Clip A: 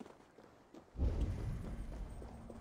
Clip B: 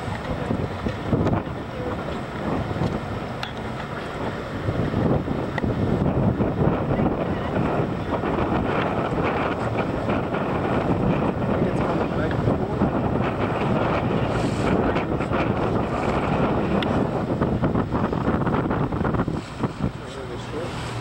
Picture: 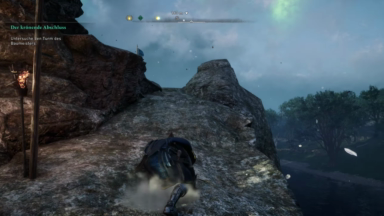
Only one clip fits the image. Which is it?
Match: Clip A